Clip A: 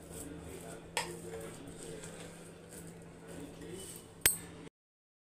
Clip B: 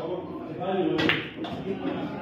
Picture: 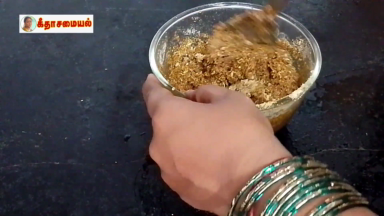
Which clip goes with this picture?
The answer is A